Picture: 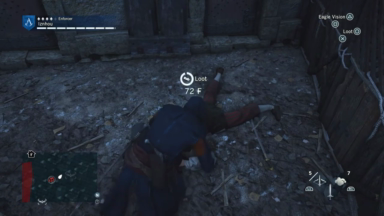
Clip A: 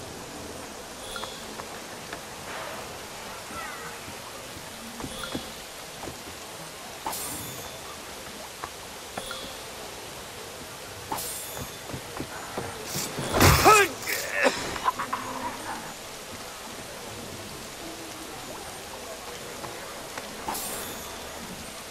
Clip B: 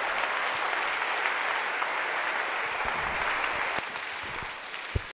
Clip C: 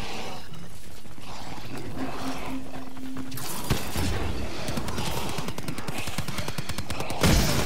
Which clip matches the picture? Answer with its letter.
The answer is A